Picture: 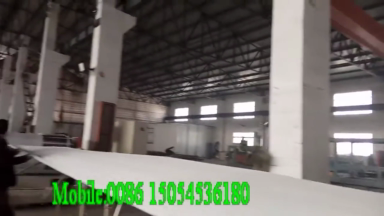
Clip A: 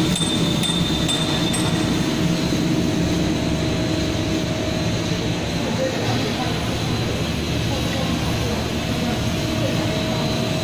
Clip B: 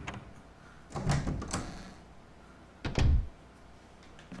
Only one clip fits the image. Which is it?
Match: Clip A